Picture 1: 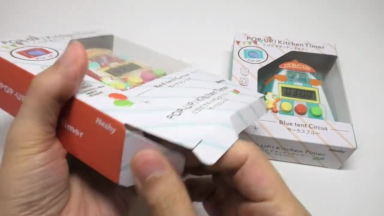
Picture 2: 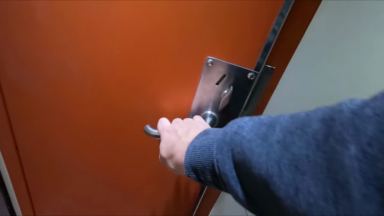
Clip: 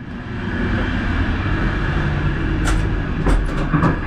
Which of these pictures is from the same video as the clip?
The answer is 2